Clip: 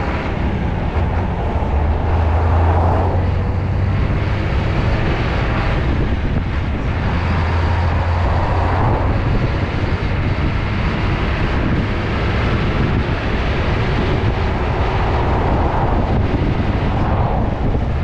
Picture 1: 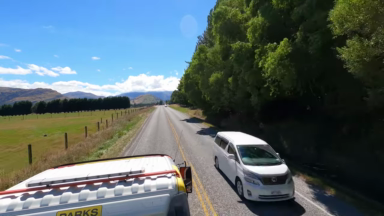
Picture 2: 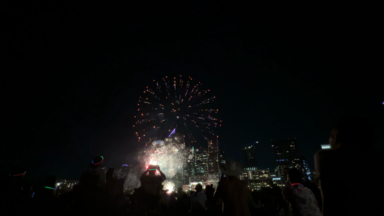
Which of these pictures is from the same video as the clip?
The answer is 1